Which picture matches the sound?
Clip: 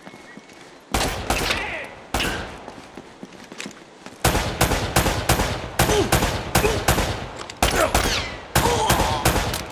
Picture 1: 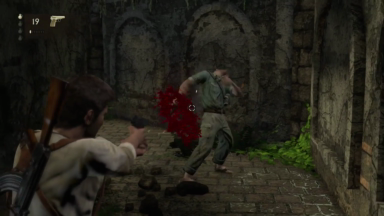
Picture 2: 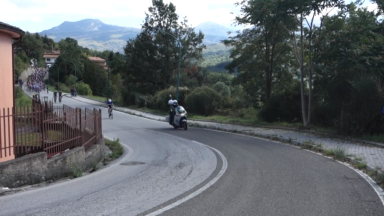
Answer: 1